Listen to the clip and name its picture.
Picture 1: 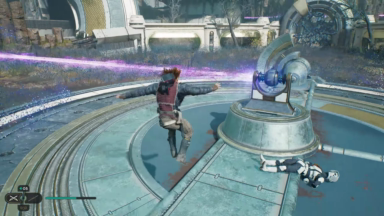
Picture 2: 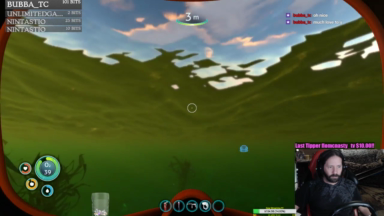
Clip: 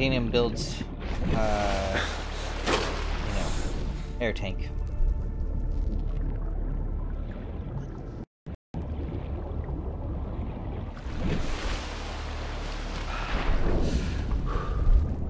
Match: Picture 2